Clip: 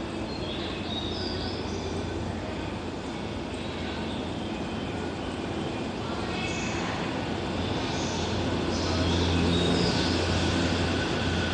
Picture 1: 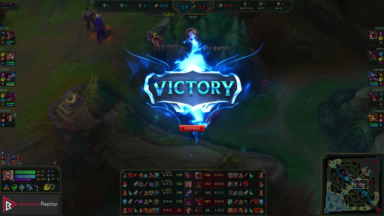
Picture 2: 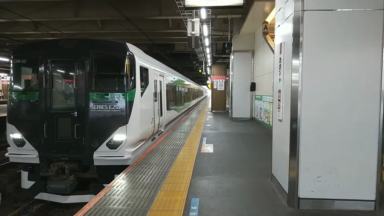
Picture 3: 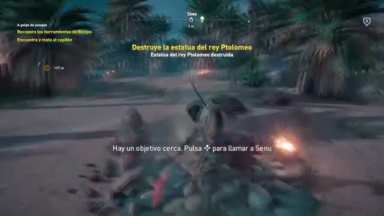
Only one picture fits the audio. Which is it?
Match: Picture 2